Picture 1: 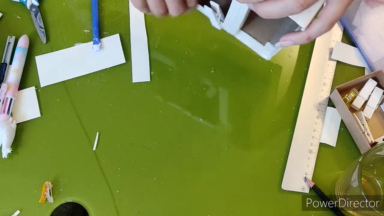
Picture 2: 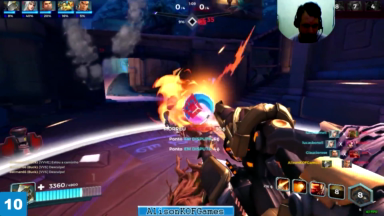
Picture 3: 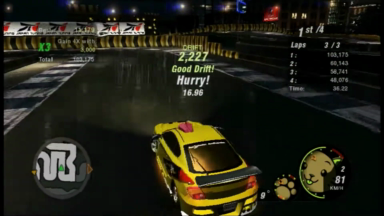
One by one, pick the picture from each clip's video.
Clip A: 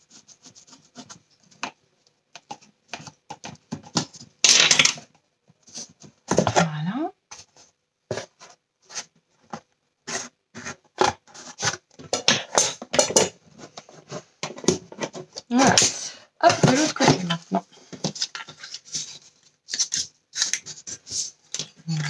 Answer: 1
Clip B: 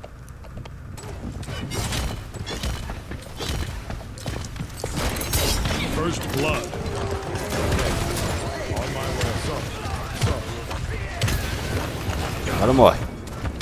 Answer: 2